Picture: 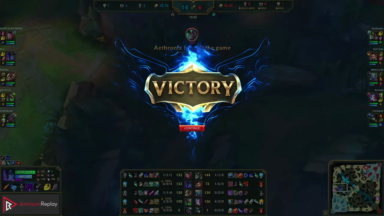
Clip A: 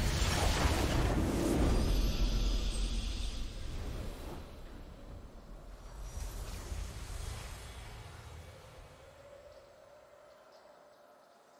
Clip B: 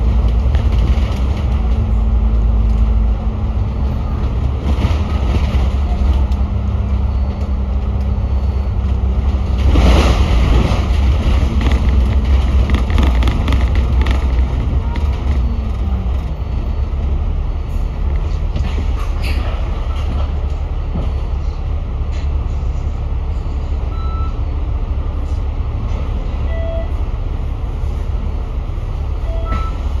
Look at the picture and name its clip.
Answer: A